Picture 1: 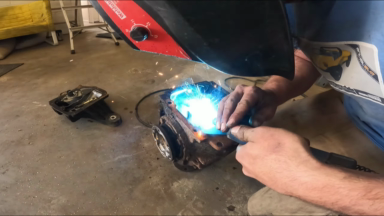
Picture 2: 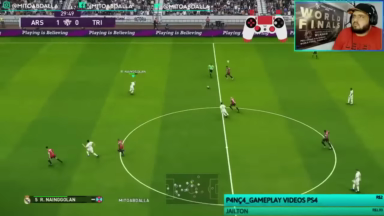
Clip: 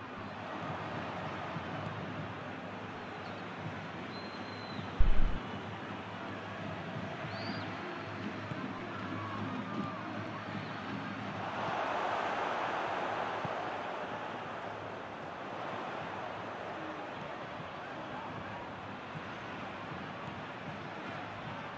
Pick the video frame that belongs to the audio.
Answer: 2